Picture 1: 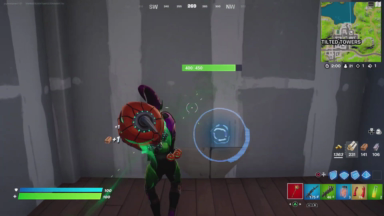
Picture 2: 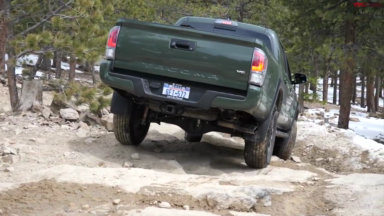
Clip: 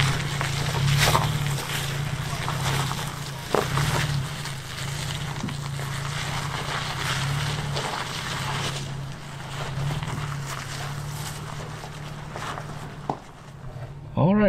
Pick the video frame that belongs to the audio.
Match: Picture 2